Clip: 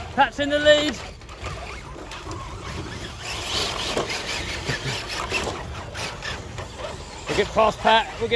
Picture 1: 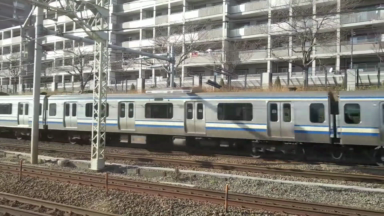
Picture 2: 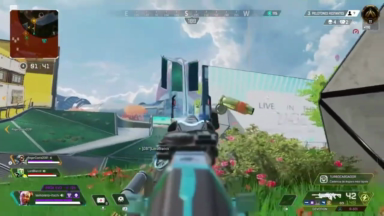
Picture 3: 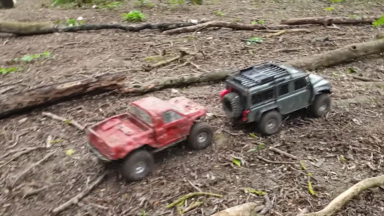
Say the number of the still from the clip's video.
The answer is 3